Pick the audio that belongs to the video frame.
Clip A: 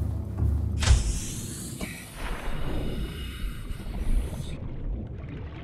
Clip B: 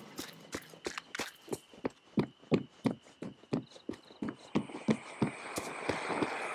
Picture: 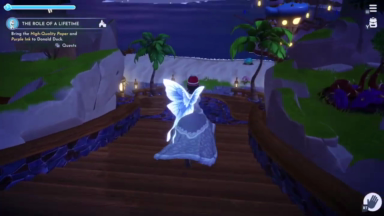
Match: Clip B